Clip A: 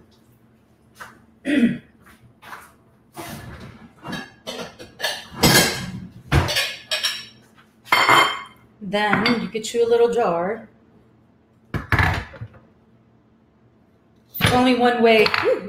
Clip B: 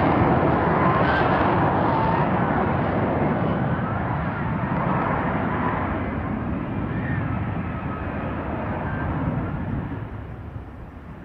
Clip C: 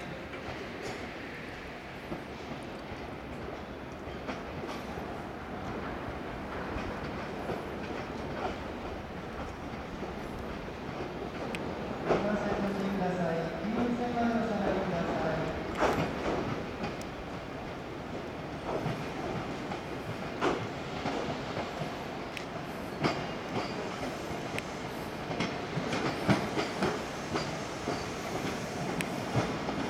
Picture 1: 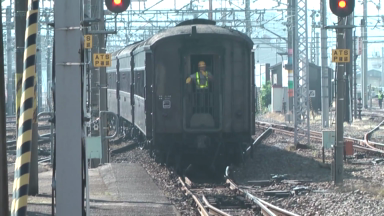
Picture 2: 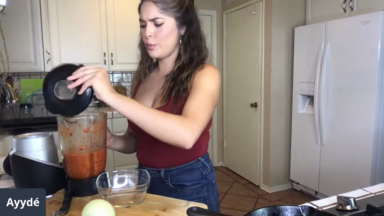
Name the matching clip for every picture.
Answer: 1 C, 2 A